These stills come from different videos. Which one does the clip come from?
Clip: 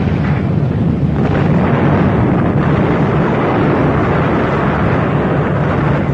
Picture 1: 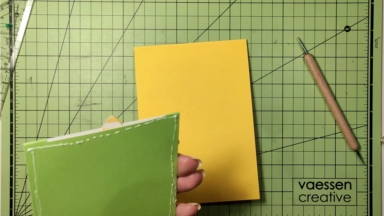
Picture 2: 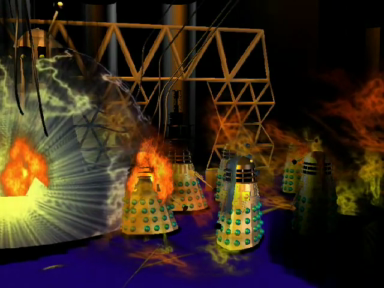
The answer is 2